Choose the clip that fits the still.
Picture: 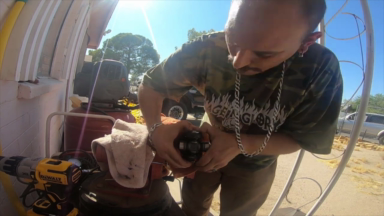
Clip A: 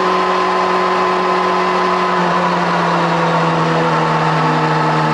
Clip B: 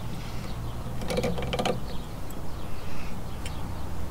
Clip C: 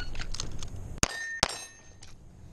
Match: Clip B